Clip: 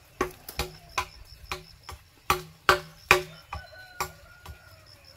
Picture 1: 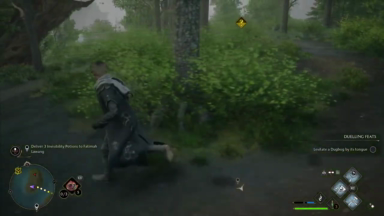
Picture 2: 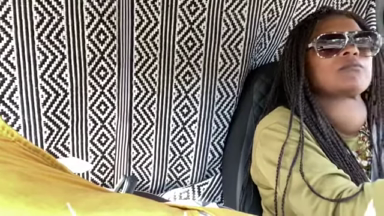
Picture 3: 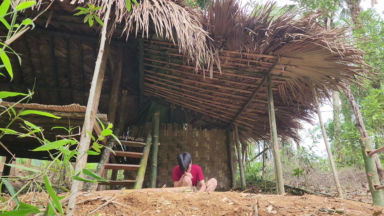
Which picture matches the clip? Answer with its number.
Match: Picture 3